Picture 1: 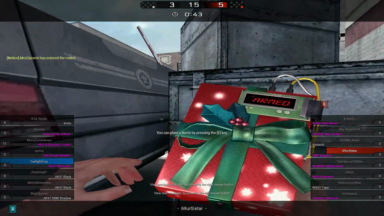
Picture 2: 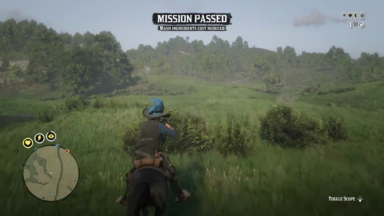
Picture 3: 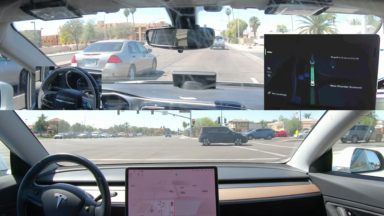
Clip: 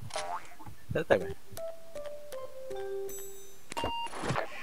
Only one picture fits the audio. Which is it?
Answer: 1